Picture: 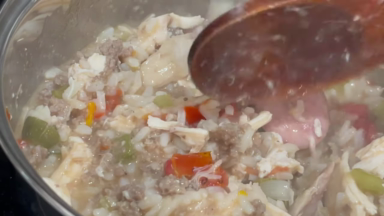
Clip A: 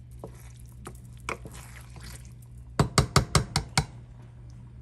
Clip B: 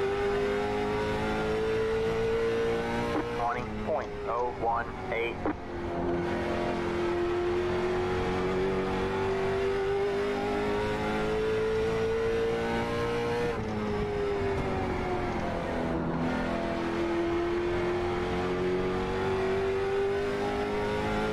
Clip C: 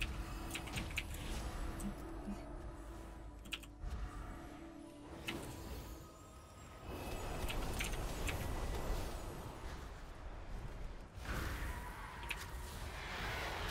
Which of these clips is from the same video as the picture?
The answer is A